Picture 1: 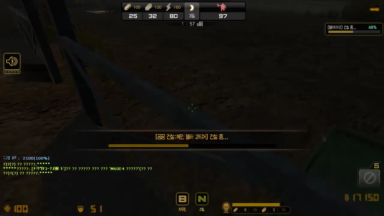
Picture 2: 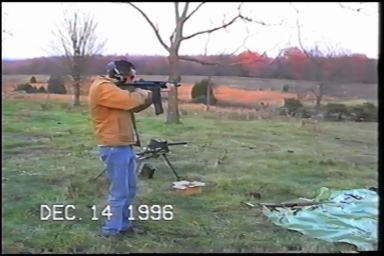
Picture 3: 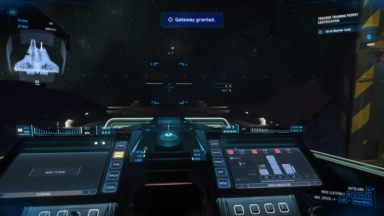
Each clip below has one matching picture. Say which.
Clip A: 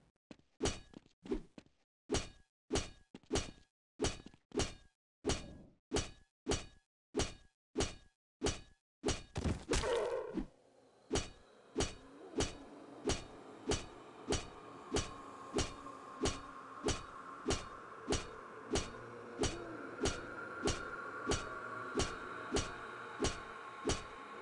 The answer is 1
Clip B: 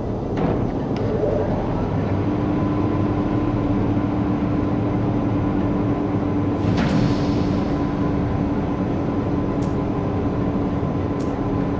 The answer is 3